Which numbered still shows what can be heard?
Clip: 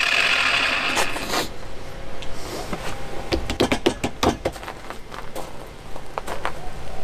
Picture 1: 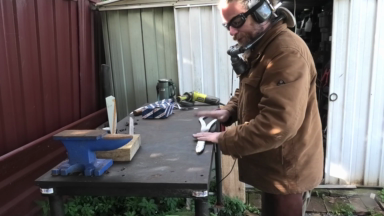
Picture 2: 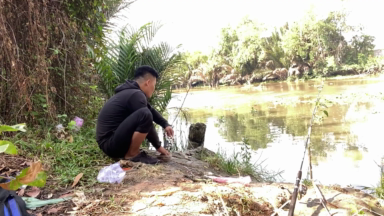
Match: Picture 1